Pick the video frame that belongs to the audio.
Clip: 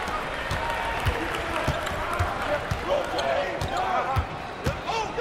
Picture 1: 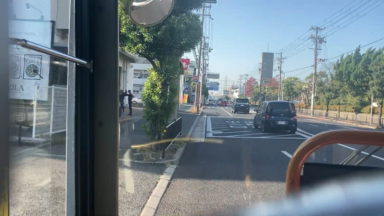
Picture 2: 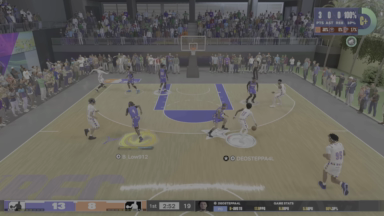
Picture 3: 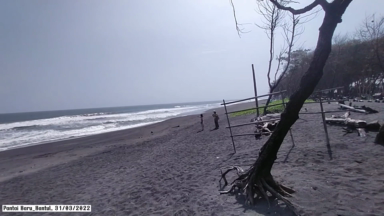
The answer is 2